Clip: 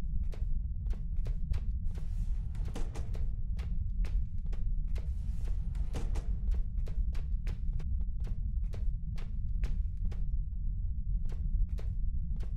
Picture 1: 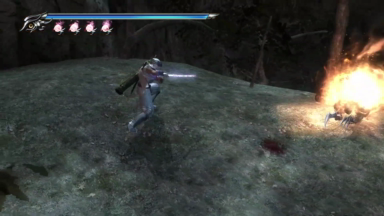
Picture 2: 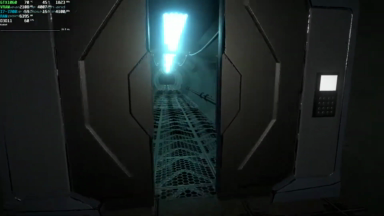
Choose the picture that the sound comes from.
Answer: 2